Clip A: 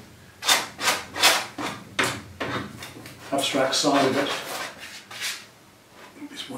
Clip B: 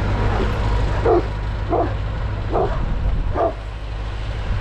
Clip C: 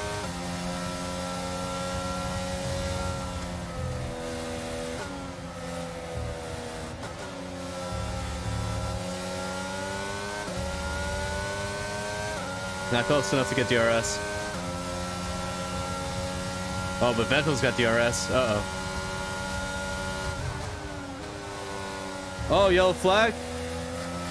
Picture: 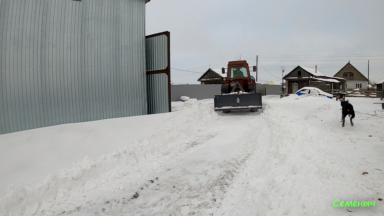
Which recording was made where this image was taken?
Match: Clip B